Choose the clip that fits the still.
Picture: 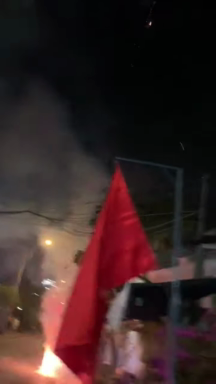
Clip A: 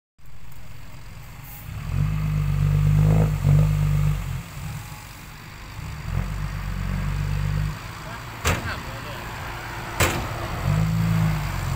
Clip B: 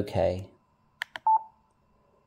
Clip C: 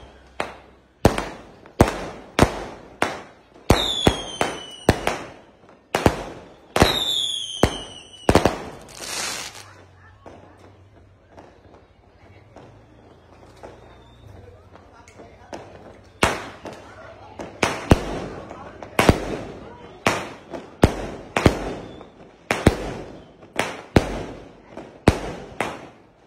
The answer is C